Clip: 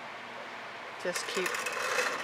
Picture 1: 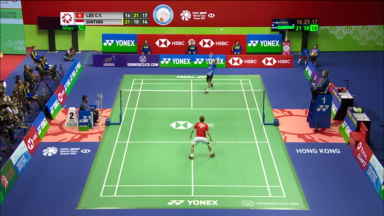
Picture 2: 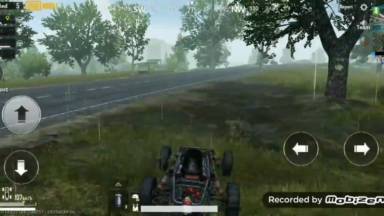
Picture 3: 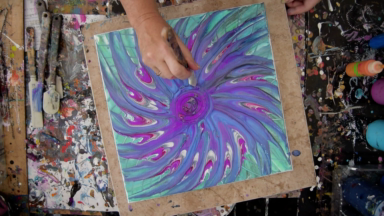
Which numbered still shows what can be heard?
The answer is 3